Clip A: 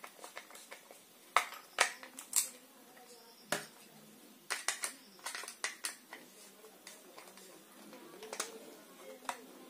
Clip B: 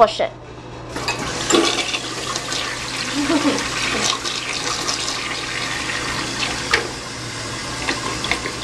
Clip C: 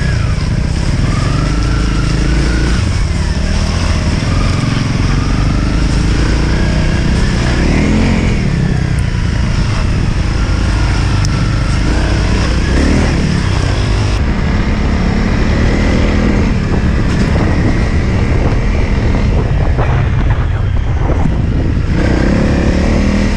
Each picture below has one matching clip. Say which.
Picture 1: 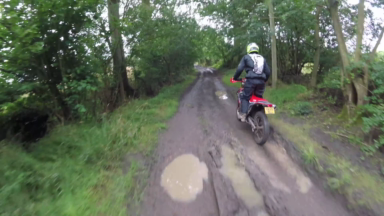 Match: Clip C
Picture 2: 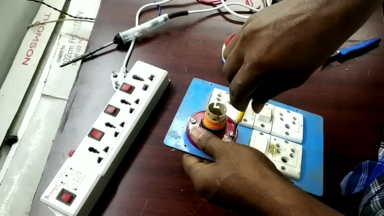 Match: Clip A